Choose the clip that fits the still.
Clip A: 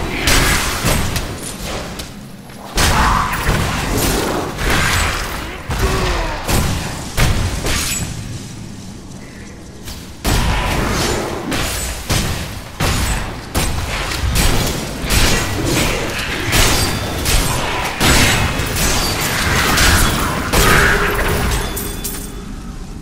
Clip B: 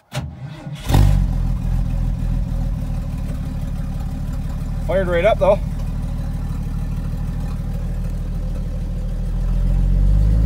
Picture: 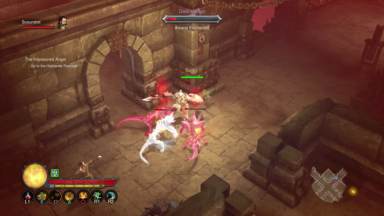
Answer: A